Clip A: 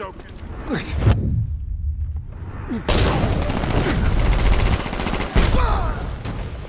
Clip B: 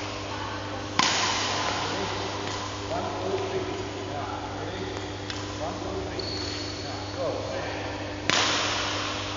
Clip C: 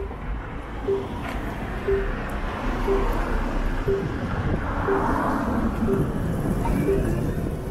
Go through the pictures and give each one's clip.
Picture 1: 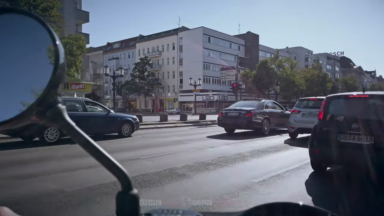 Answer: C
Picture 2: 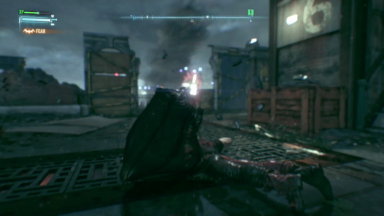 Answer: A